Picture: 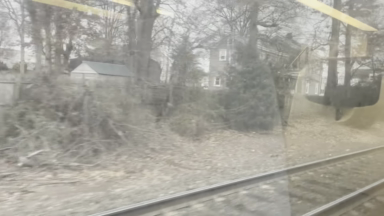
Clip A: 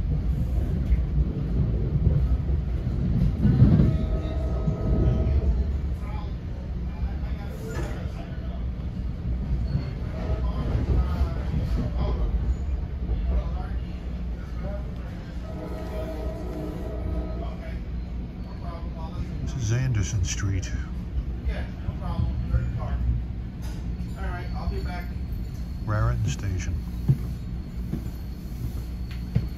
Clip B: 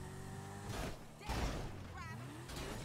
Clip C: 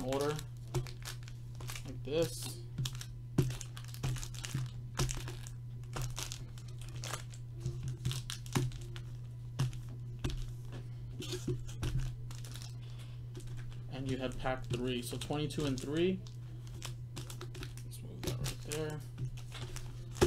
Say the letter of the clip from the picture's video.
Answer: A